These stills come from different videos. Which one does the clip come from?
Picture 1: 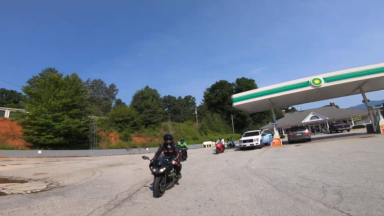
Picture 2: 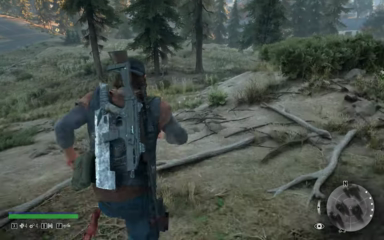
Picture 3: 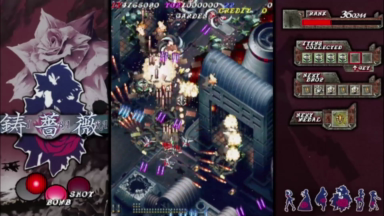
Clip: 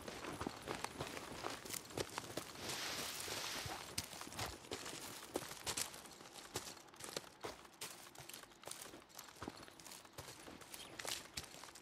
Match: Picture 2